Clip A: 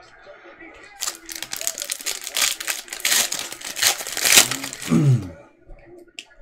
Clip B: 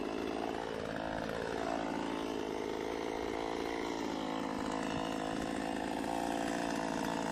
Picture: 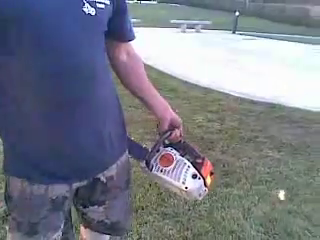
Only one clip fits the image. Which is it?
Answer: B